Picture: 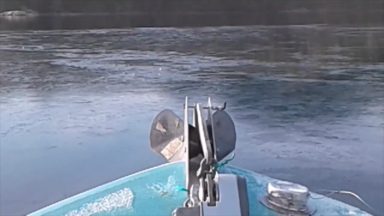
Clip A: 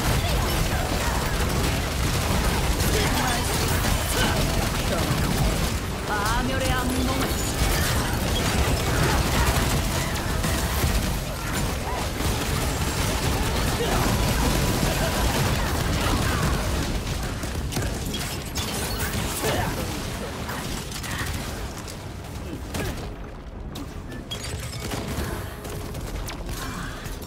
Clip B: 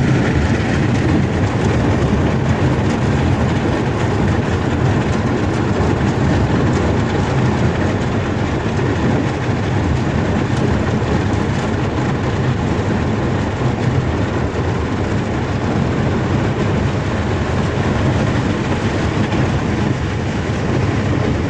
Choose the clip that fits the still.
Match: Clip B